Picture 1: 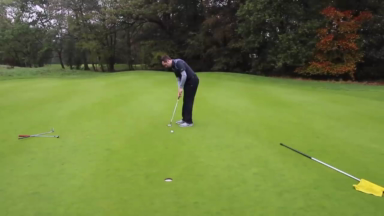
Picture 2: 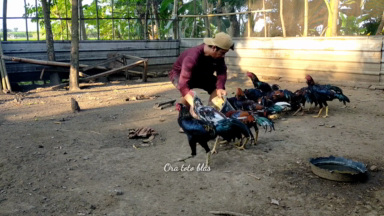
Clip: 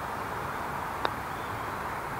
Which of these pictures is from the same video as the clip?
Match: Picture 1